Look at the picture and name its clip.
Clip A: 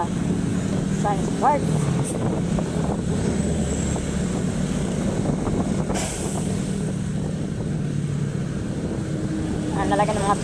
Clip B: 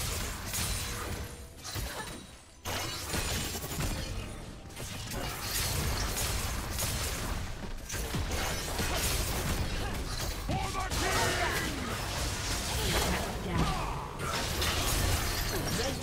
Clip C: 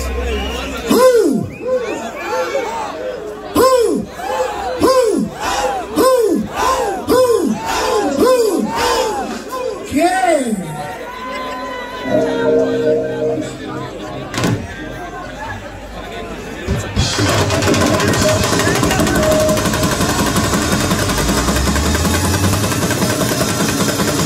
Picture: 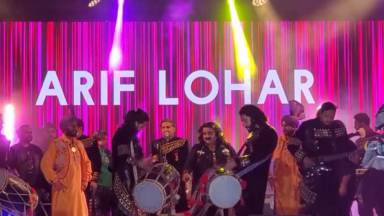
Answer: C